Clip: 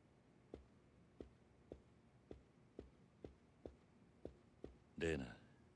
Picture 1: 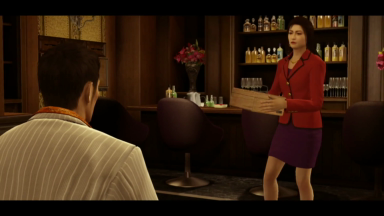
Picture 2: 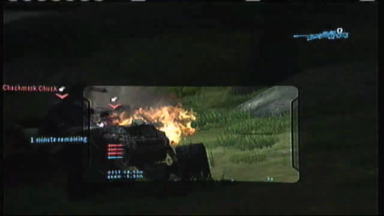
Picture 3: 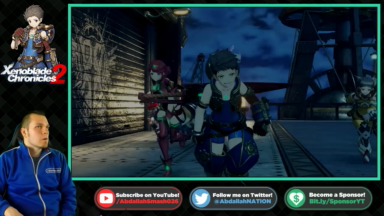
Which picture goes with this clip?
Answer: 1